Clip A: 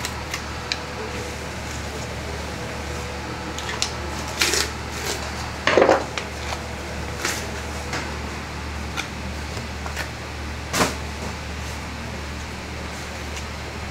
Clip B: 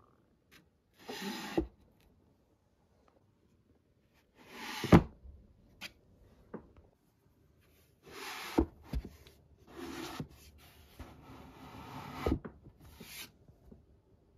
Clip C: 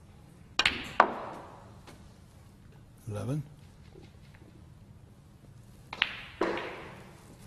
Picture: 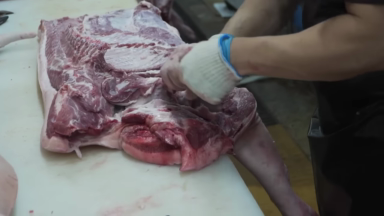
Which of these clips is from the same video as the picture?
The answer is A